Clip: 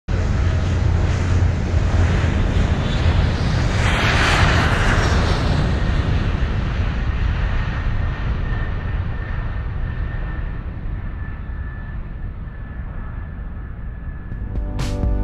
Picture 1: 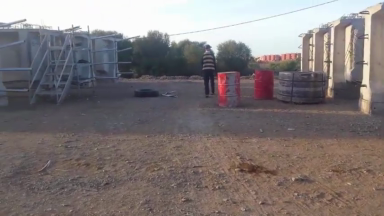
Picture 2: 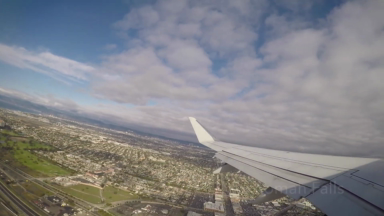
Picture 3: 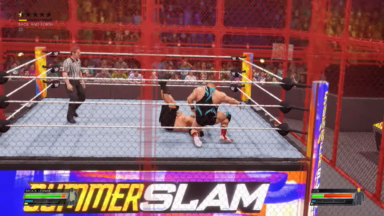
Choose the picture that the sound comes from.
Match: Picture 2